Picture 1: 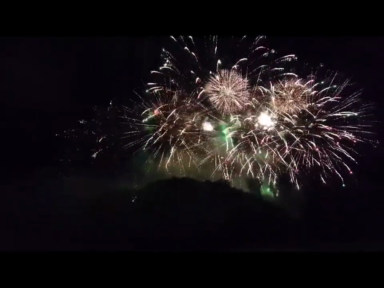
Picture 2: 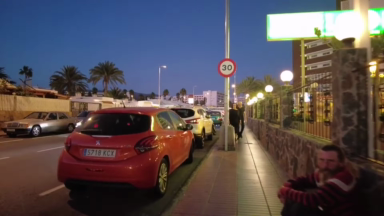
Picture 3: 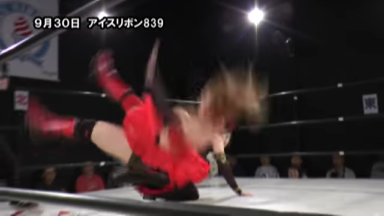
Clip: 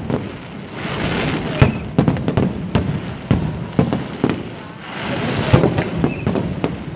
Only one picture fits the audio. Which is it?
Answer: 1